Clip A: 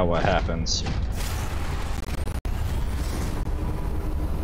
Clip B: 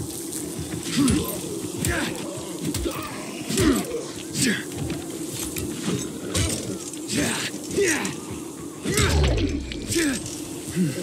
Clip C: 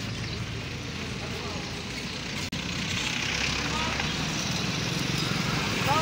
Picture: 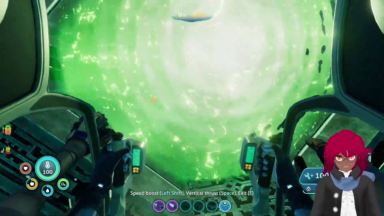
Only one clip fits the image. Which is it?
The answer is A